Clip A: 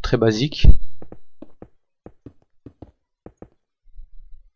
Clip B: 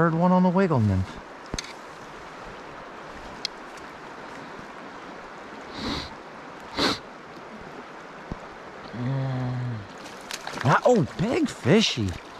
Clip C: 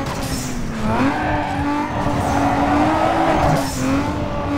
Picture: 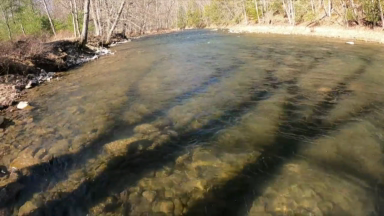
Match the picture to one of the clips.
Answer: B